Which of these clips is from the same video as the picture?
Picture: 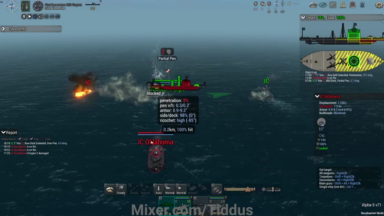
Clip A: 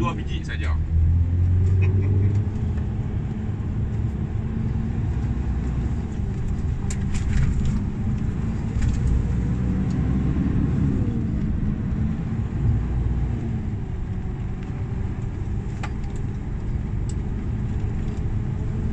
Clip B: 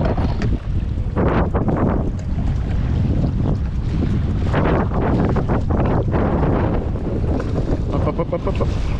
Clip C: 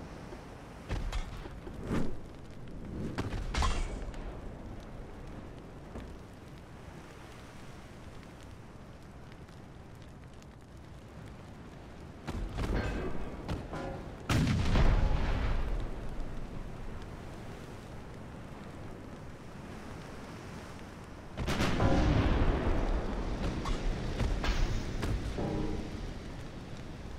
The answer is C